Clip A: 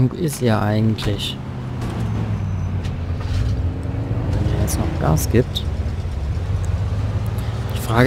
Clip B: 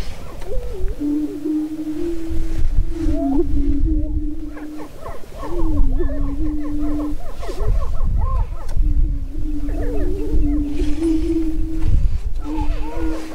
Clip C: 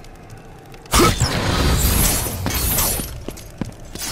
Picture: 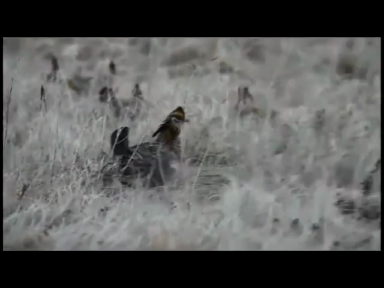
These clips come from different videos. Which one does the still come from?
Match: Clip B